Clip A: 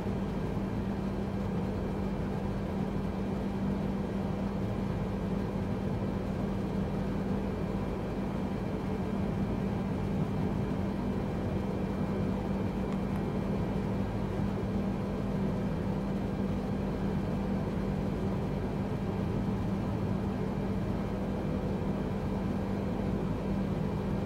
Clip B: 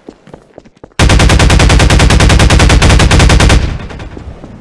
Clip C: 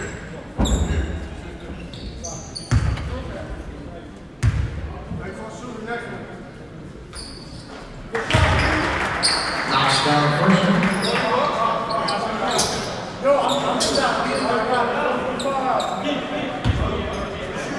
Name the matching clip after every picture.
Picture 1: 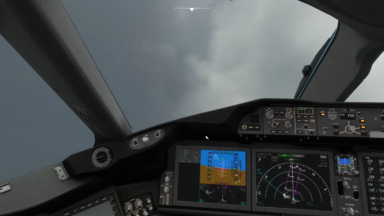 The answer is A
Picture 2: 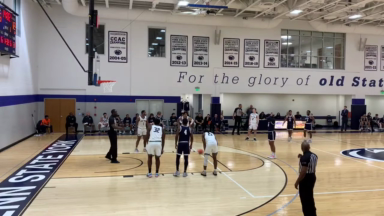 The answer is C